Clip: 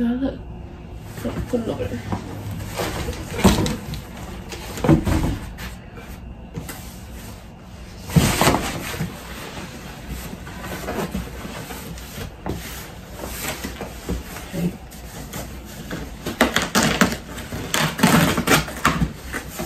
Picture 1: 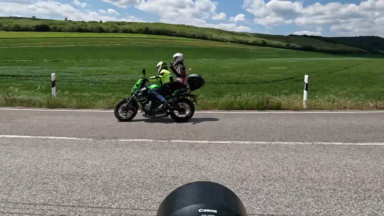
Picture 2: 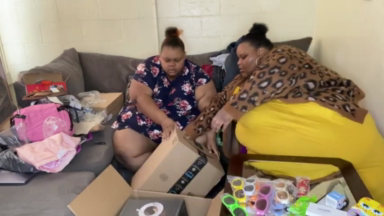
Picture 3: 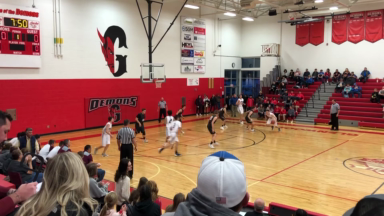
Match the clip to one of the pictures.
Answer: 2